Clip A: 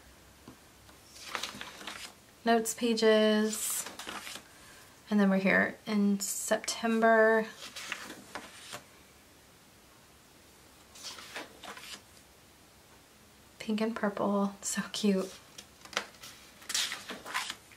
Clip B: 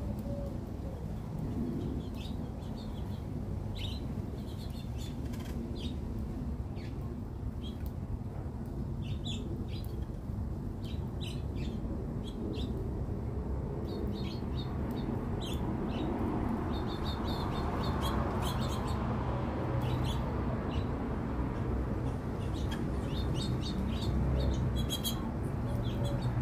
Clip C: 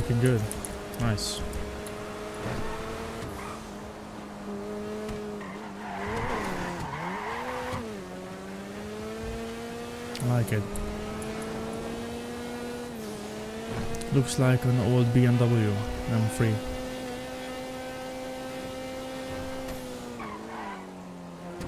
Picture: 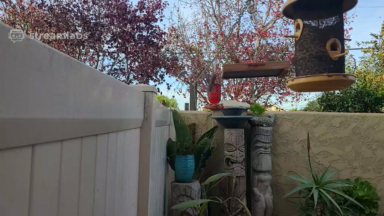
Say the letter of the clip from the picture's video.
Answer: B